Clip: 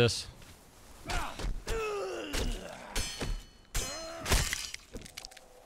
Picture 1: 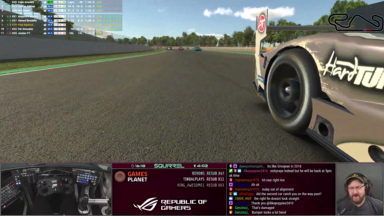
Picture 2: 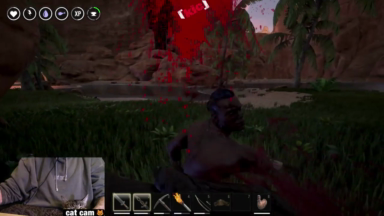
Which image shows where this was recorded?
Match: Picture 2